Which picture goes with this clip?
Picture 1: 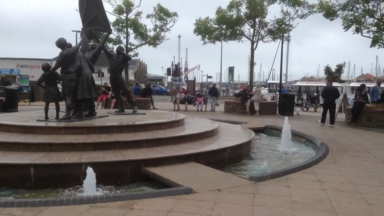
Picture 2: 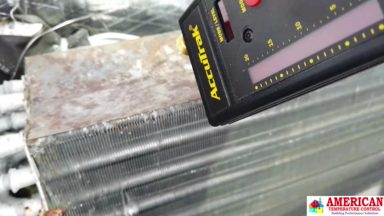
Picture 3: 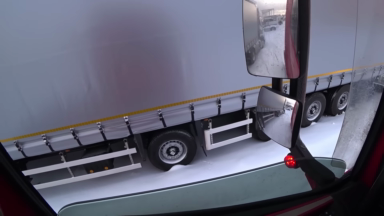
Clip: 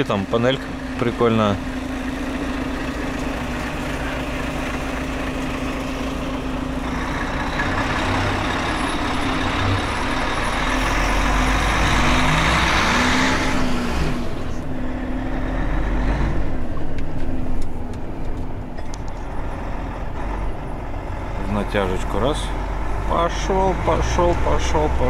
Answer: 3